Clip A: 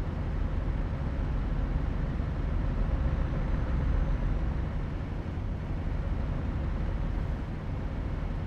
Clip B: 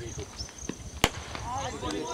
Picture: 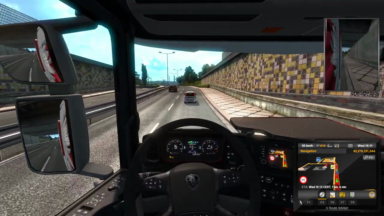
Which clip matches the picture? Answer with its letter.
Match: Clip A